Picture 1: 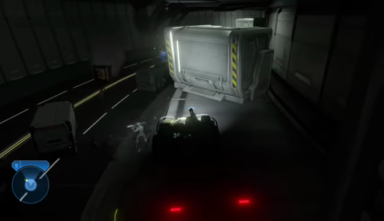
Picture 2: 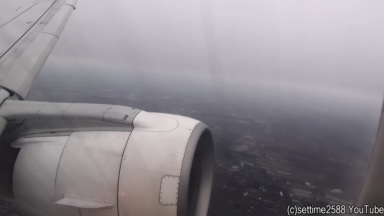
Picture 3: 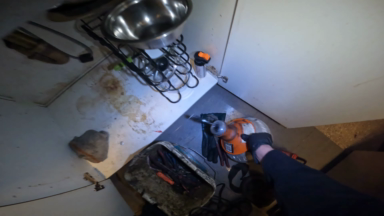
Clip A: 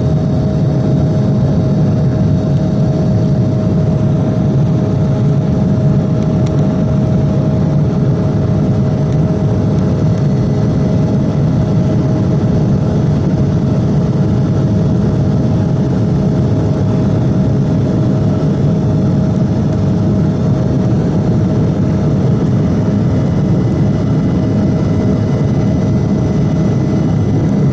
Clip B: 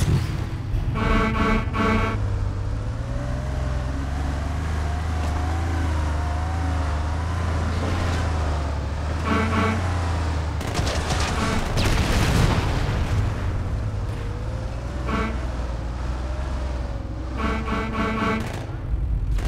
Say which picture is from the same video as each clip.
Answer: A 2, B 1